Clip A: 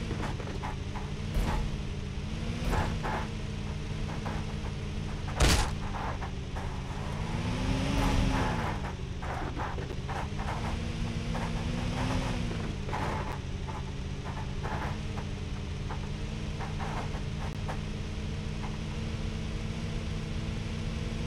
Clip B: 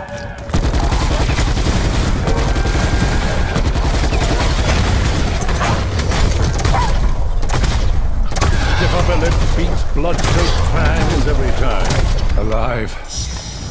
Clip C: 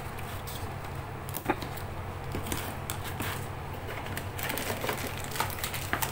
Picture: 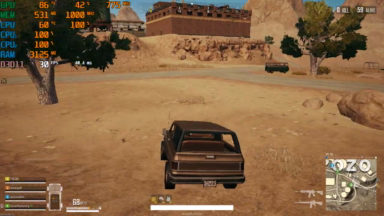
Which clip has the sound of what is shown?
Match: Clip A